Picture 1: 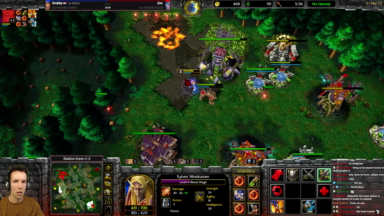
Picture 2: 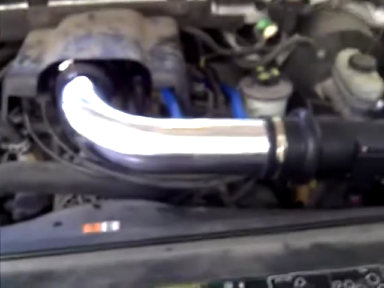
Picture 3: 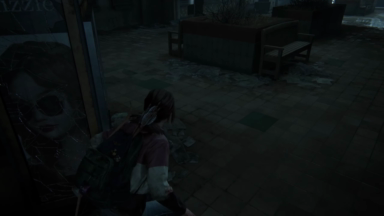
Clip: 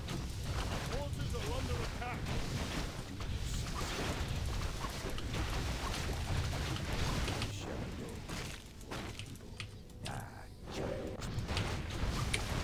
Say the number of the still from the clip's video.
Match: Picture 1